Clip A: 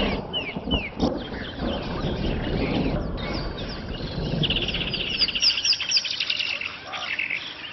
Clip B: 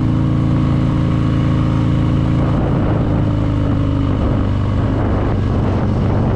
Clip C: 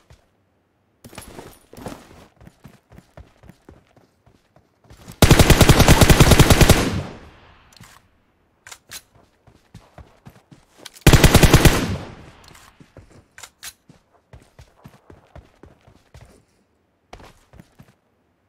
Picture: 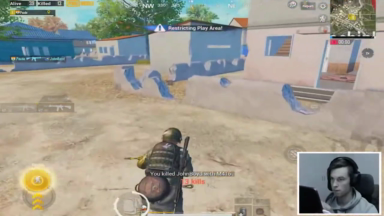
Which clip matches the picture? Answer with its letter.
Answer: C